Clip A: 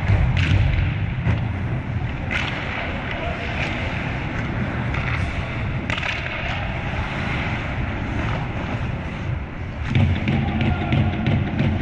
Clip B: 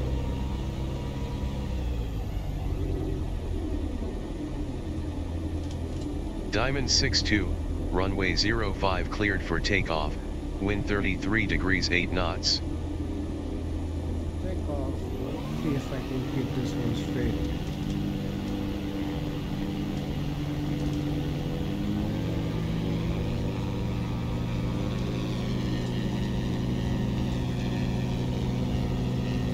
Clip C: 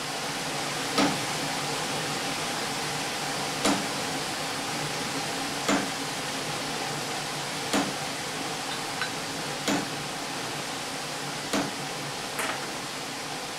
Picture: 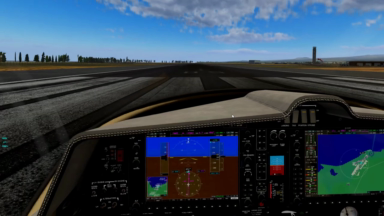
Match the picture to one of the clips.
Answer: B